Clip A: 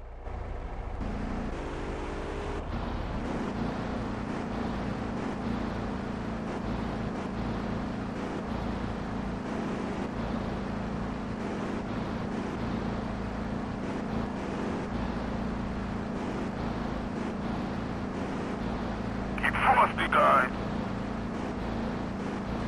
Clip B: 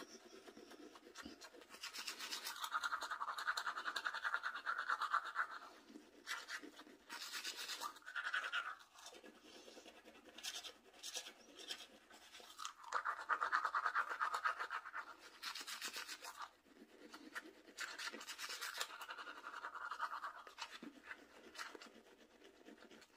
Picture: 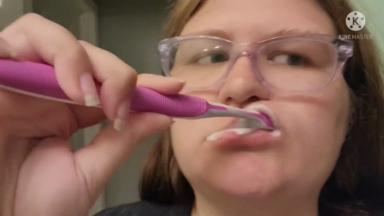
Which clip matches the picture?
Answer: B